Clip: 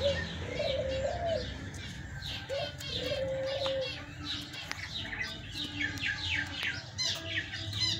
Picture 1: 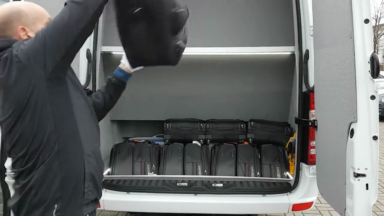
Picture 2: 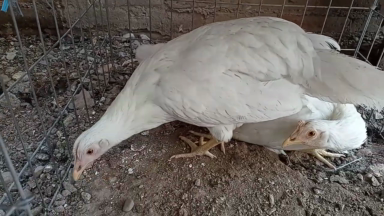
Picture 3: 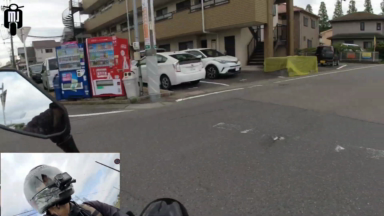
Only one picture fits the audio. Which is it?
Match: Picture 2